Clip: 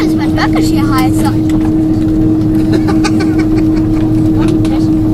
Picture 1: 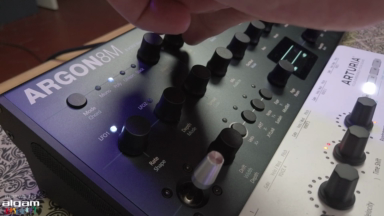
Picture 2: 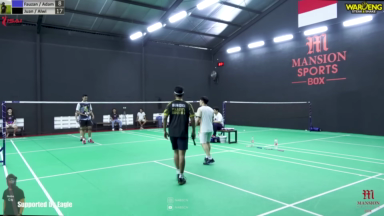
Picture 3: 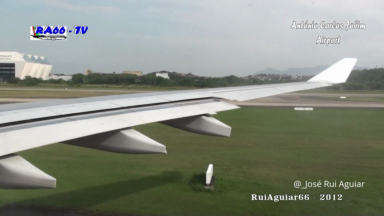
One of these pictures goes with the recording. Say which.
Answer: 3